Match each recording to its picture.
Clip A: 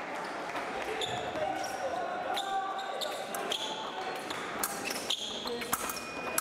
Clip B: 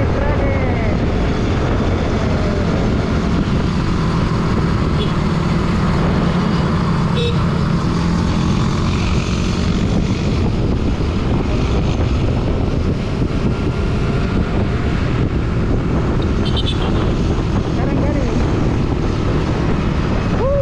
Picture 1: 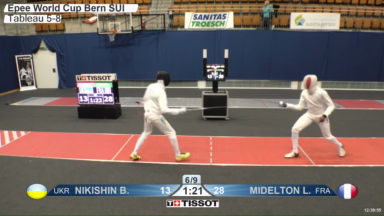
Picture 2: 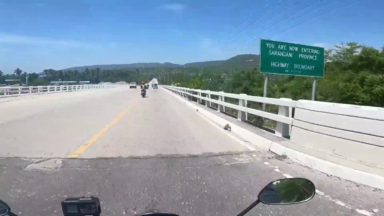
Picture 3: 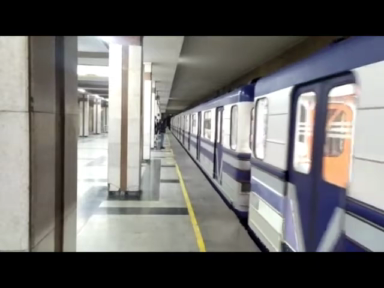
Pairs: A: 1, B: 2